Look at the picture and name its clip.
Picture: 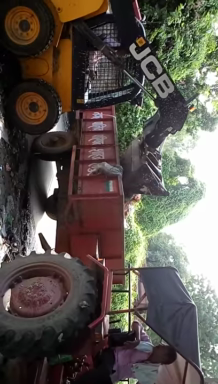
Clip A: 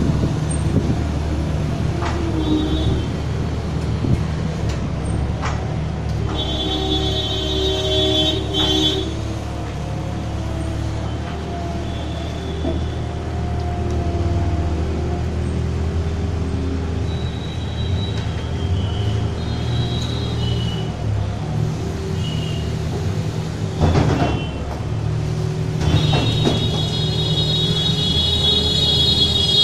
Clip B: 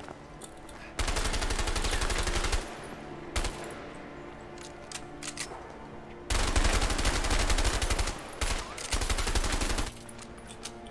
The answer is A